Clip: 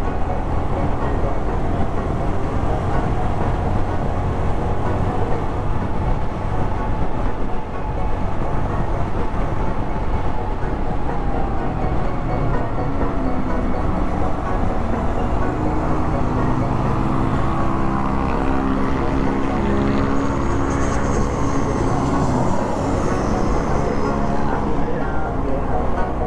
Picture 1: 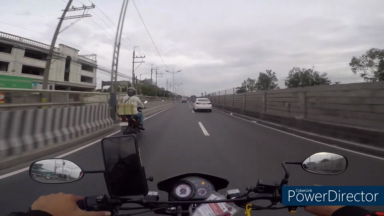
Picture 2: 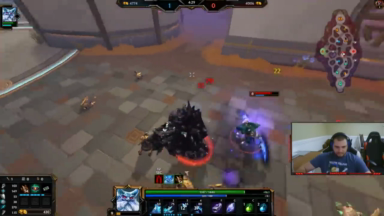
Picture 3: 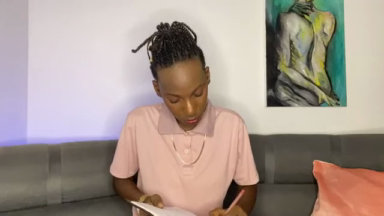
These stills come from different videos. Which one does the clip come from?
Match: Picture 1